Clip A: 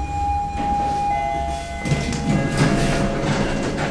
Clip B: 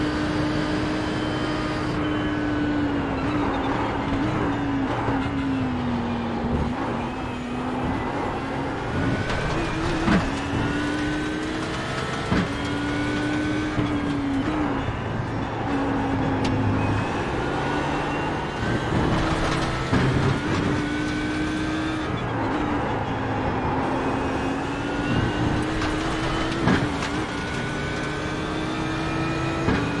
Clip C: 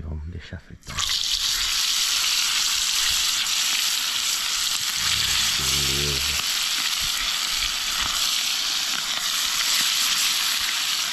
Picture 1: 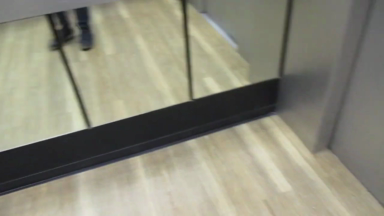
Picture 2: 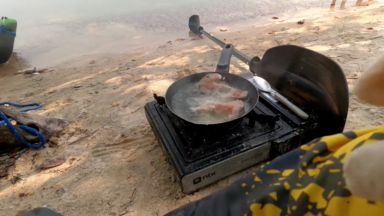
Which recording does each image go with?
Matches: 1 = A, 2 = C